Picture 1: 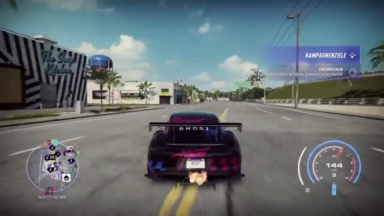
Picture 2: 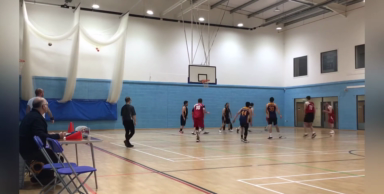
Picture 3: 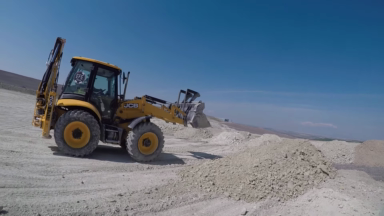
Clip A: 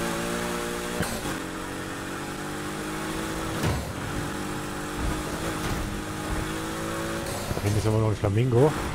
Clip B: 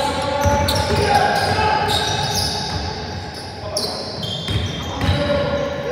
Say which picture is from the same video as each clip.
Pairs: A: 1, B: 2